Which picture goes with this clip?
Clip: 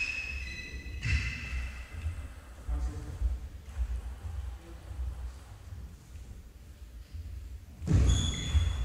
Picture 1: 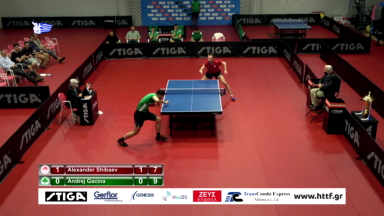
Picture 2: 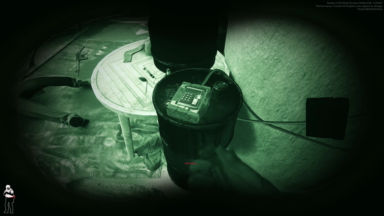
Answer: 1